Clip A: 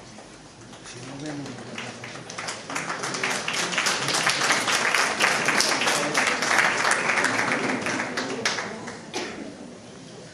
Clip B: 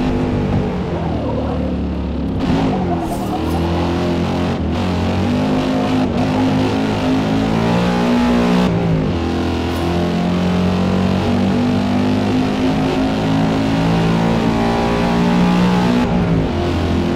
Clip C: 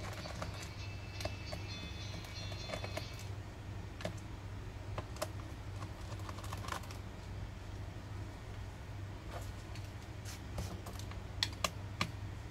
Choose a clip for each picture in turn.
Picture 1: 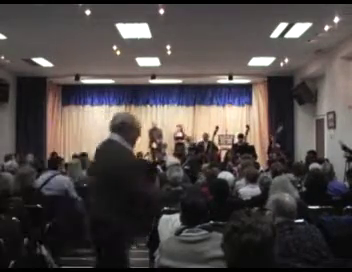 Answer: A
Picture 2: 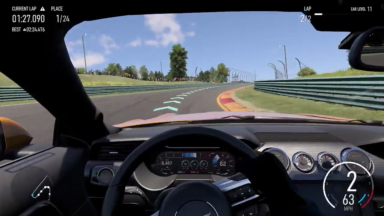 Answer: B